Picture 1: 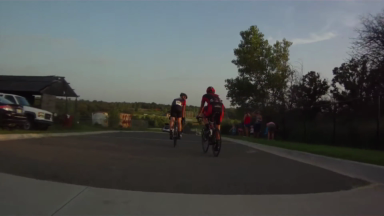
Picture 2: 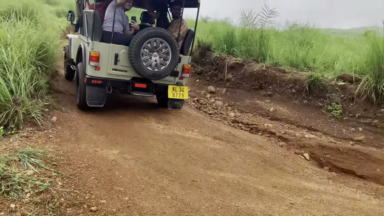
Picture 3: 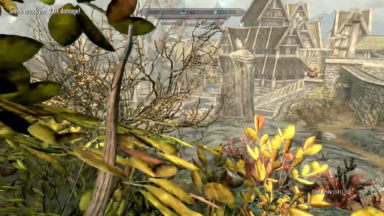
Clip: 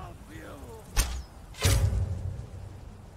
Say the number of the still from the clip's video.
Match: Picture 3